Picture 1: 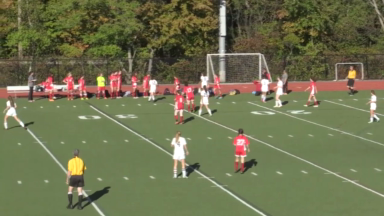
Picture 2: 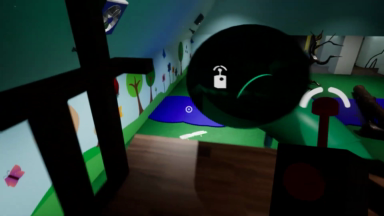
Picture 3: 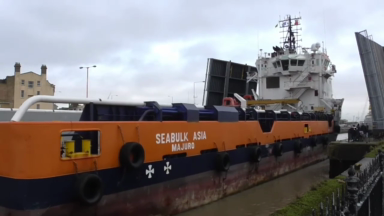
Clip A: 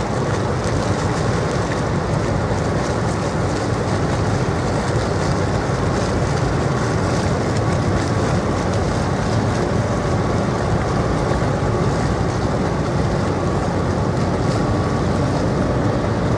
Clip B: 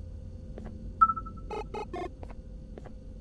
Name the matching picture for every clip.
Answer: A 3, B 2